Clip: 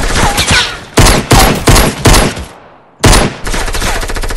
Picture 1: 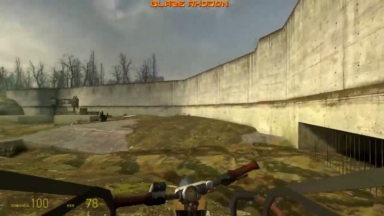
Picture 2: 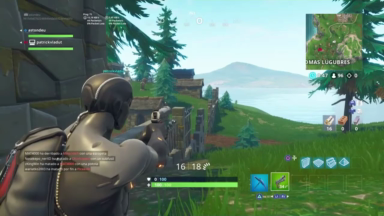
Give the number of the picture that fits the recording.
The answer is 2